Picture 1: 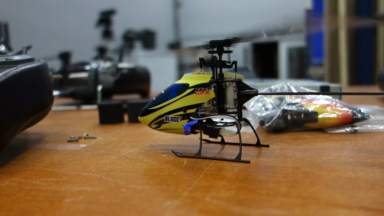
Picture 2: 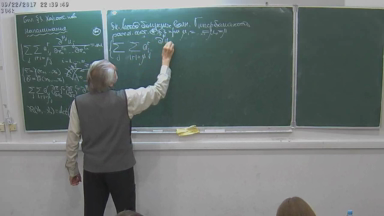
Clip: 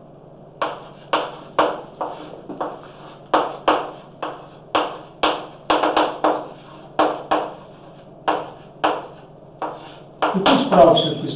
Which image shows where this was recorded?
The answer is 2